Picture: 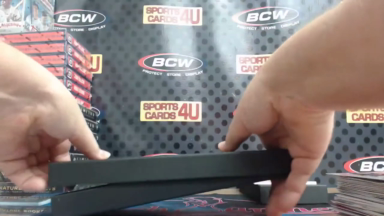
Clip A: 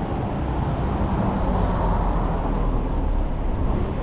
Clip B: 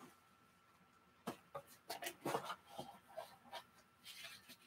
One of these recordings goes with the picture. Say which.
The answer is B